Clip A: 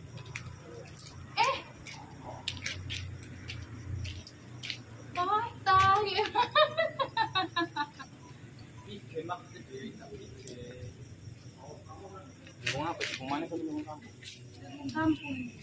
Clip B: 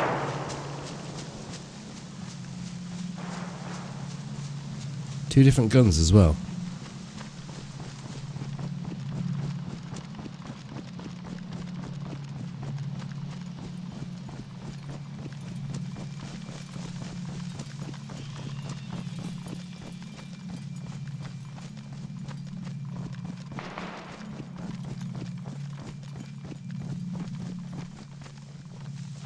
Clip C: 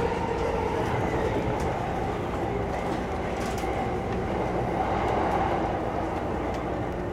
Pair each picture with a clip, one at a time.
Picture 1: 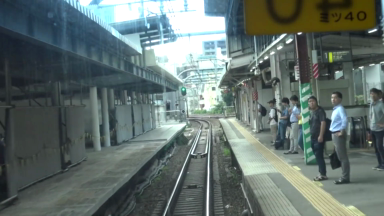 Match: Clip C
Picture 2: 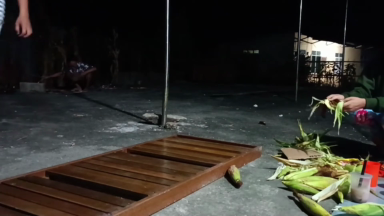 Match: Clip A